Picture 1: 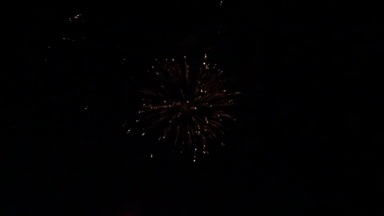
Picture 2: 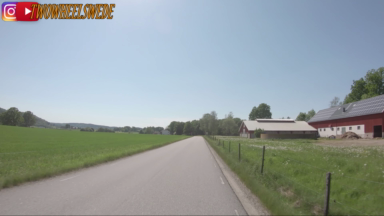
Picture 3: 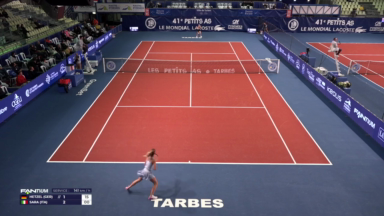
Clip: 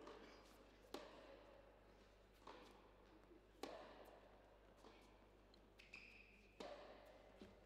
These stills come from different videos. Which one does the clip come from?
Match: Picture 3